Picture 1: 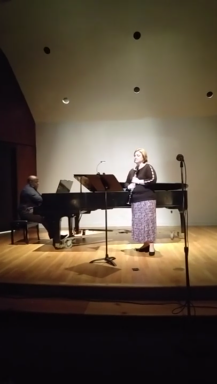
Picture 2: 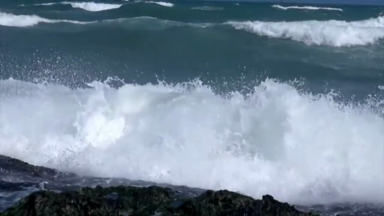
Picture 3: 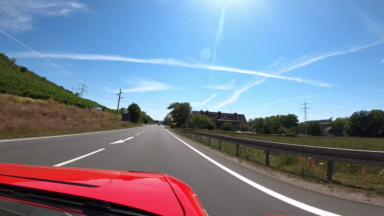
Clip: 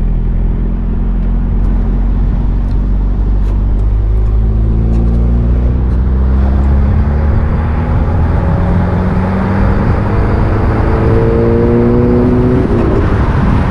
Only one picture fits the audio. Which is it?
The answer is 3